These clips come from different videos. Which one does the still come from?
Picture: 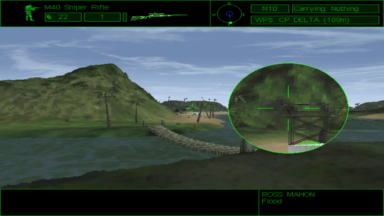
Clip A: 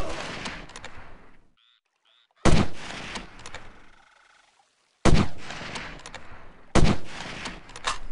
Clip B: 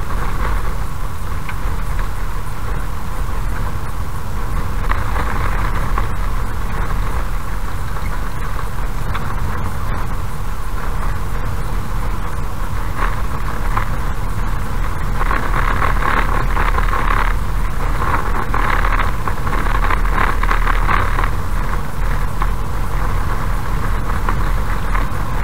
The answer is A